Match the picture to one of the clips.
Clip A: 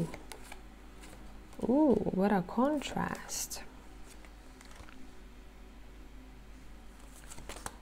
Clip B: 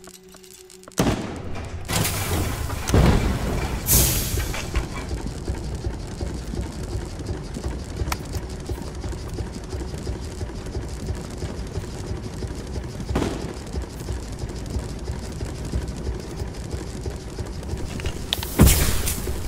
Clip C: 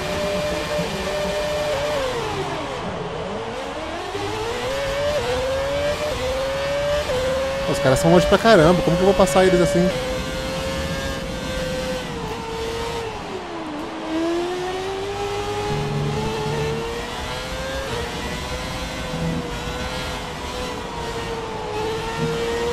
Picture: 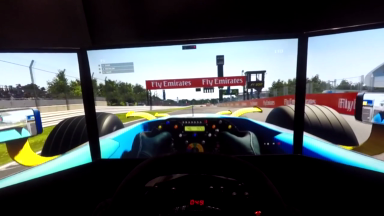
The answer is C